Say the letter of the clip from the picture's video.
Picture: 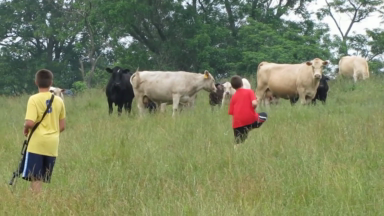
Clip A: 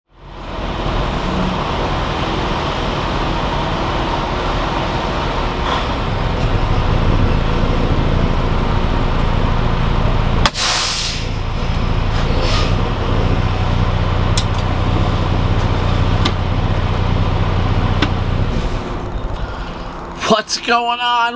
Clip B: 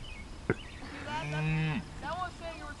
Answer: B